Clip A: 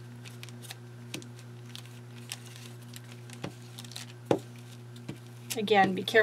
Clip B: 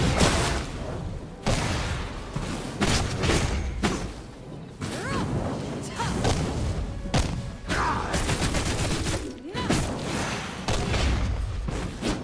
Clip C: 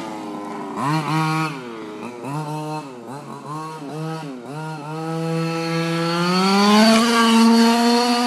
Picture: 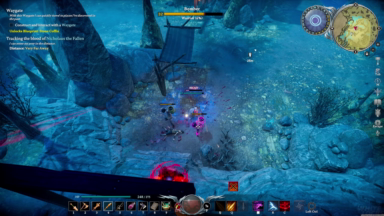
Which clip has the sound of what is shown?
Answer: B